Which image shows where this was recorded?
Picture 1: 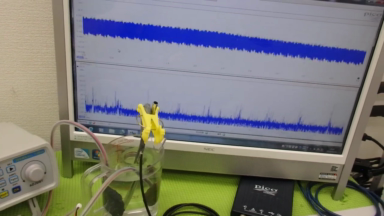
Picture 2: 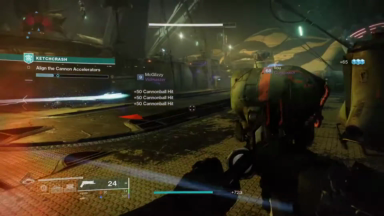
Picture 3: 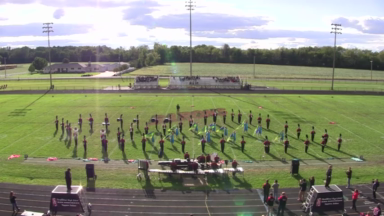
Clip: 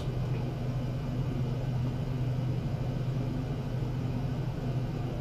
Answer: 1